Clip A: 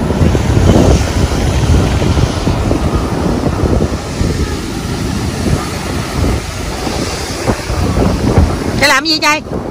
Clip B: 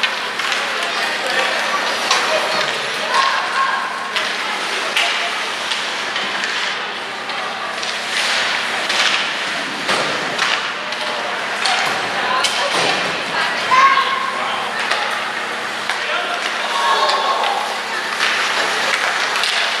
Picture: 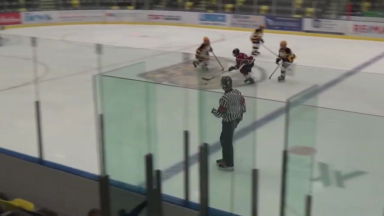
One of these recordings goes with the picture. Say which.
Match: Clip B